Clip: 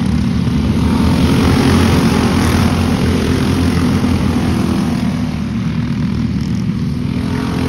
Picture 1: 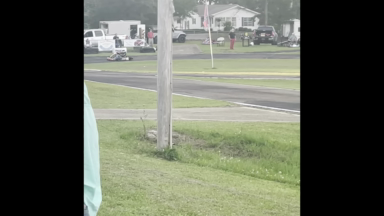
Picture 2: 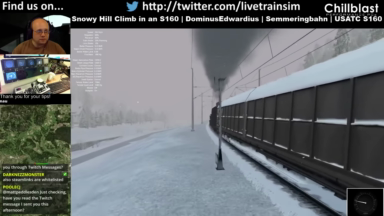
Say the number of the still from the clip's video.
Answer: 1